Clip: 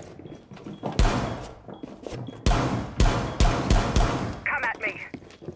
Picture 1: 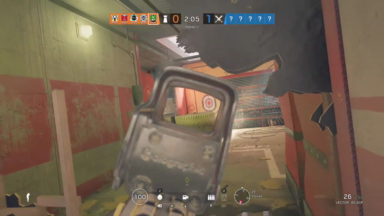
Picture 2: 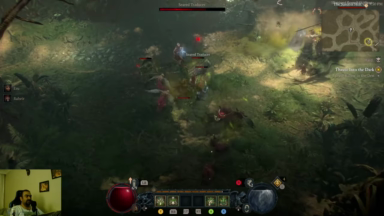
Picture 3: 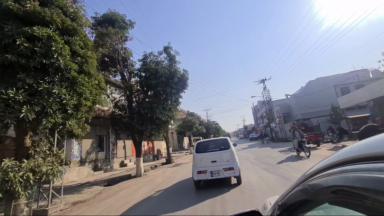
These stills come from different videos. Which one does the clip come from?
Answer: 1